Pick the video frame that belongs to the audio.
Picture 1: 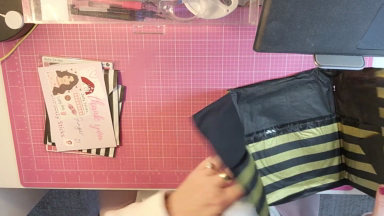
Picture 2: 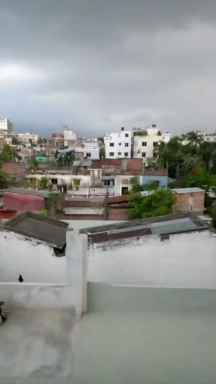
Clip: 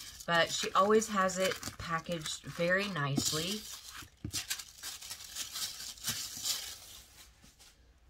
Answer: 1